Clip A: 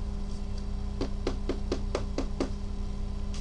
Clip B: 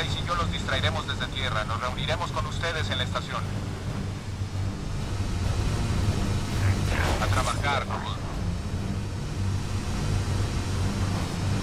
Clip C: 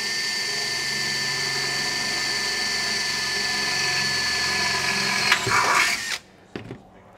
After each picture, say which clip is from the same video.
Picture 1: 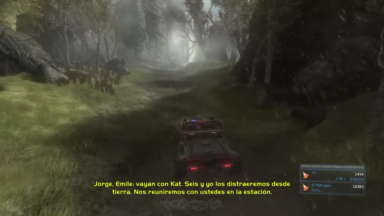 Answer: B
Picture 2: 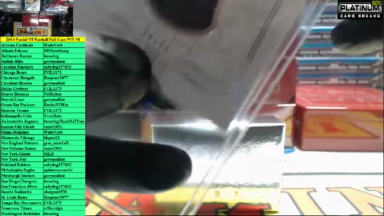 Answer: A